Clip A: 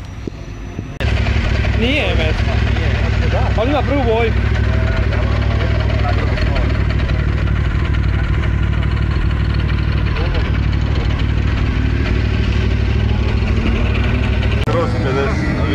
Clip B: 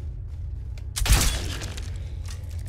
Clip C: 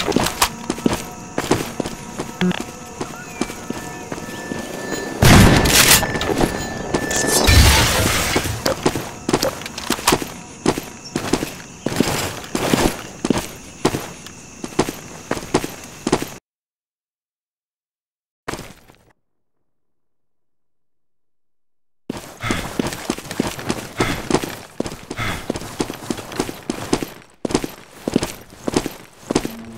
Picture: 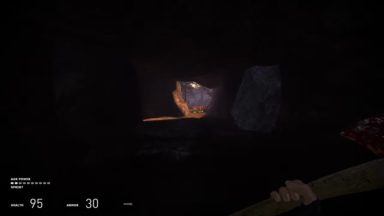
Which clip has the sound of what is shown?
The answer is C